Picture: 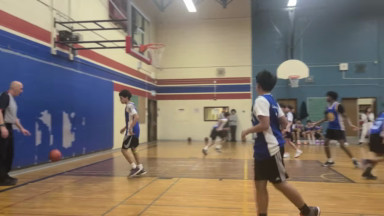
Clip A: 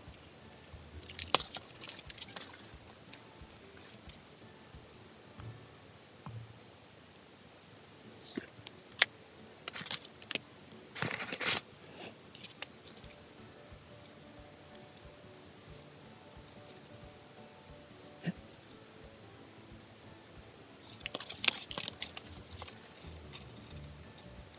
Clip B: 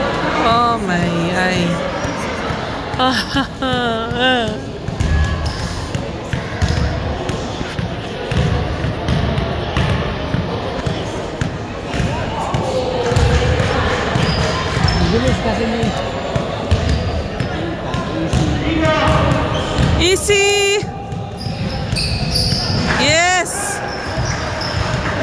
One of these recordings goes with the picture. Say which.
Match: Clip B